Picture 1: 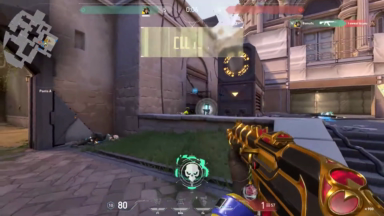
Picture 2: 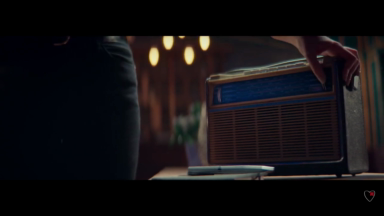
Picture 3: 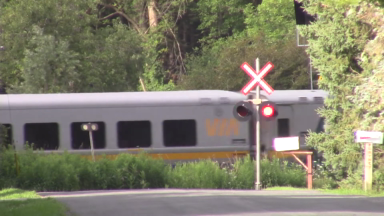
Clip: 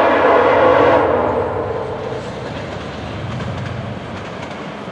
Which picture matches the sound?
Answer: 3